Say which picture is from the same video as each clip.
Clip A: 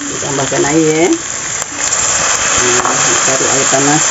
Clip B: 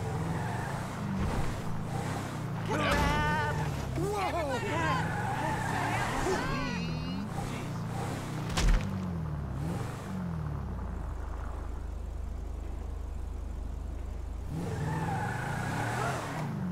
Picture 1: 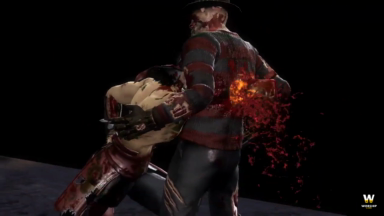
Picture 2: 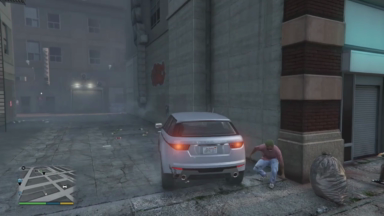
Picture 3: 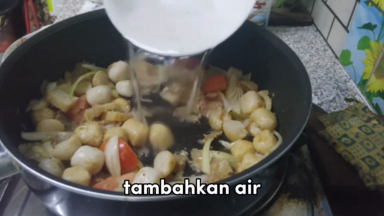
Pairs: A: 3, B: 2